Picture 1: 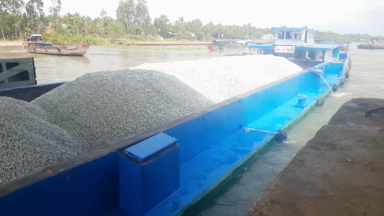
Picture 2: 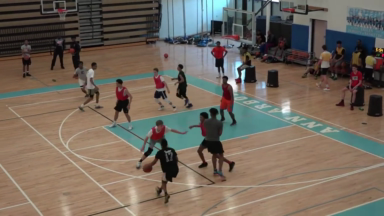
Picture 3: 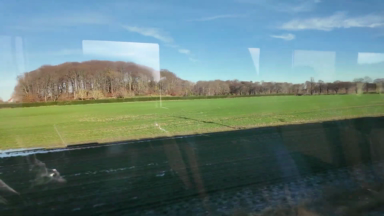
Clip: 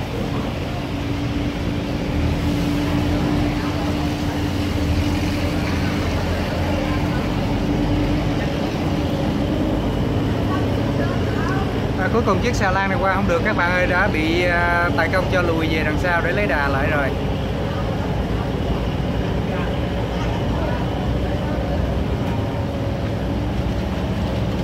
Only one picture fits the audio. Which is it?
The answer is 1